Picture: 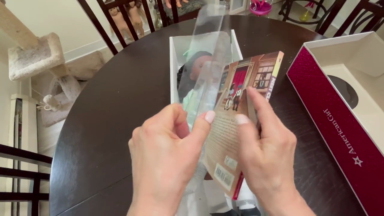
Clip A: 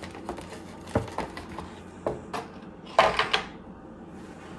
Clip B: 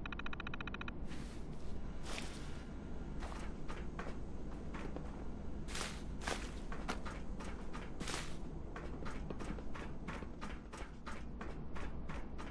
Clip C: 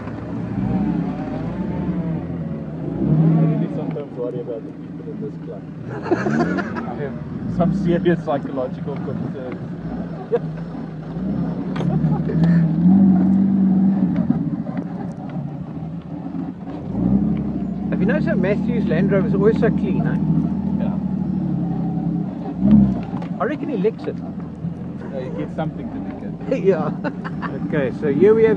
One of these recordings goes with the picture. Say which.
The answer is A